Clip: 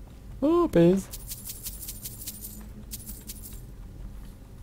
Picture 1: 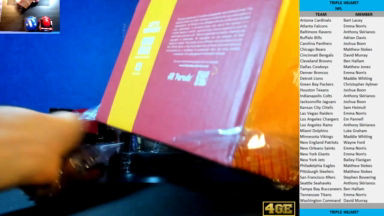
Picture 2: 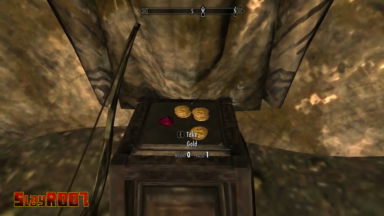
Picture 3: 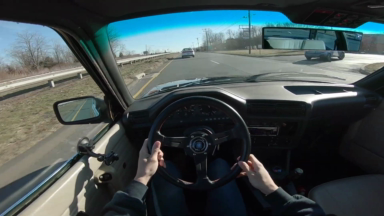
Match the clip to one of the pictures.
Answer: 2